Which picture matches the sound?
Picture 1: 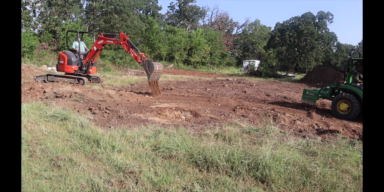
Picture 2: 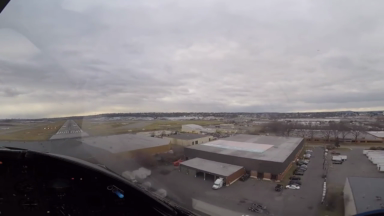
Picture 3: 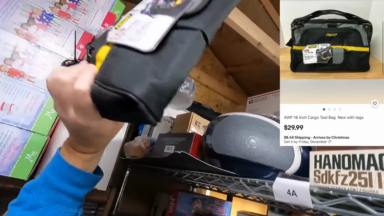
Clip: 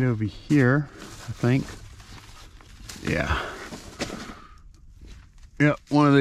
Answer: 3